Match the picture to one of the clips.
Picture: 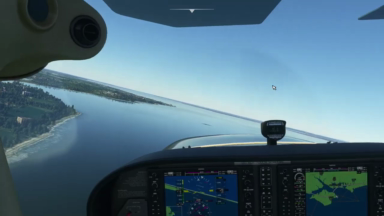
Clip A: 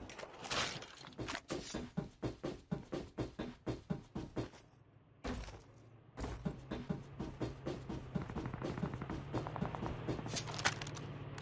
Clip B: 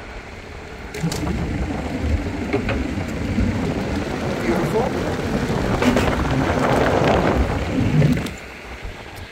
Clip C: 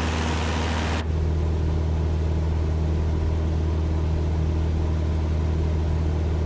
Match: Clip C